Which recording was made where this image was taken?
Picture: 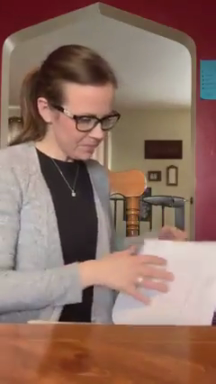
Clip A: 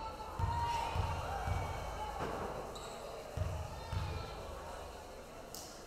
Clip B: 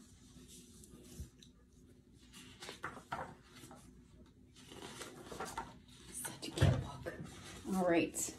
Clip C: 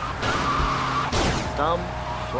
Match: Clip B